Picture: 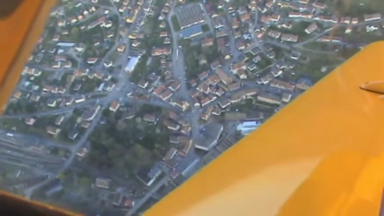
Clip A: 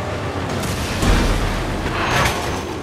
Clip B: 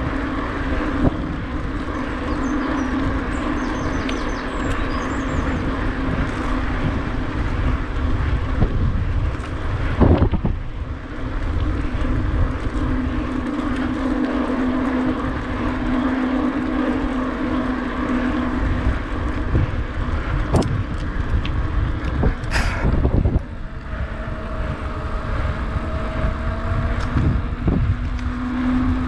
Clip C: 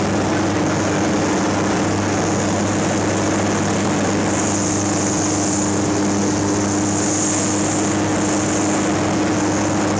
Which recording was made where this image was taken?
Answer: C